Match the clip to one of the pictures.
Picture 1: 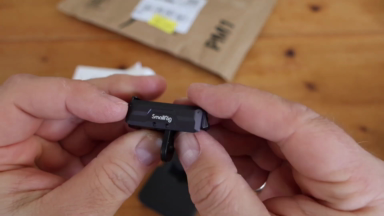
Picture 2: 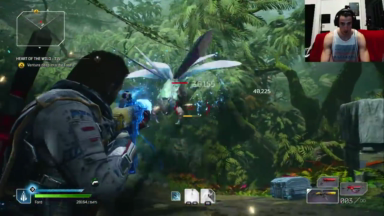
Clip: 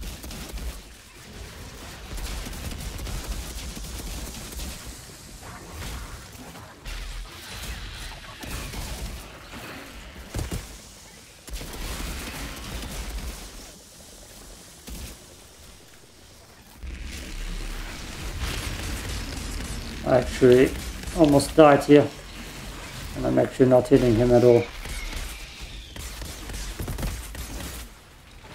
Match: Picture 2